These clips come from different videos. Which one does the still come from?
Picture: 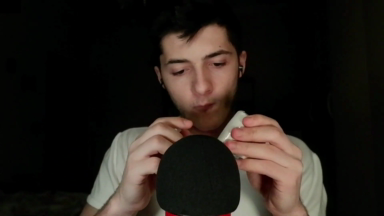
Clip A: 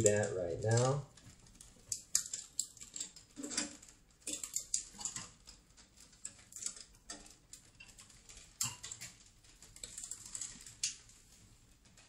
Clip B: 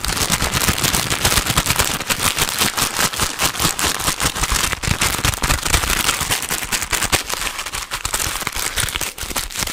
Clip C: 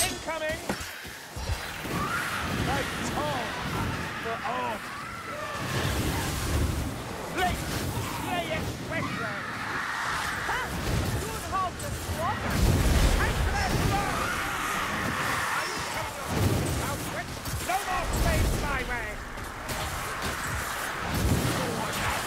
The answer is B